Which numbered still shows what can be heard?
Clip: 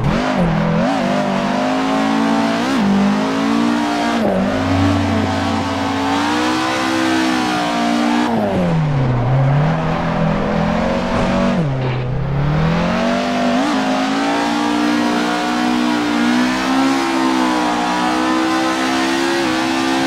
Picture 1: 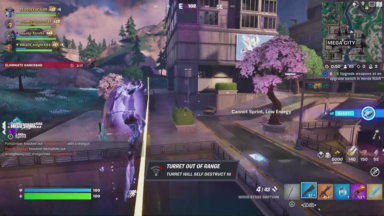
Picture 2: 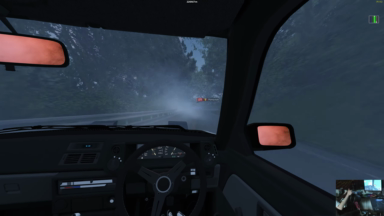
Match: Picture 2